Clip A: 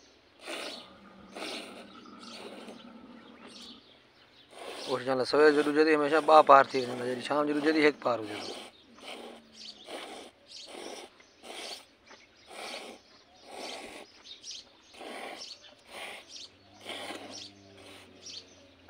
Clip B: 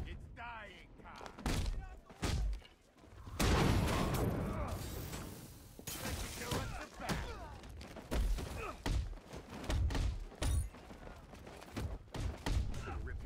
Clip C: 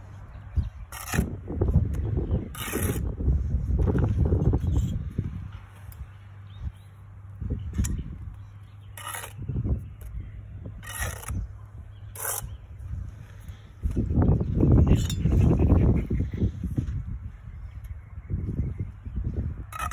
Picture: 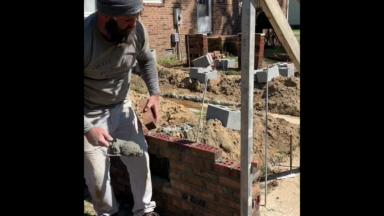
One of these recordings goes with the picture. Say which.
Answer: C